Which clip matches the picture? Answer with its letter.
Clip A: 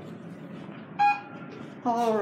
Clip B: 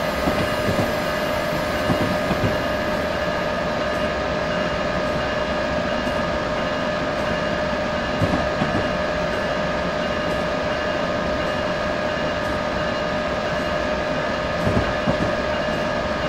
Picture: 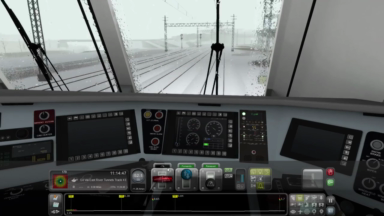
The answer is B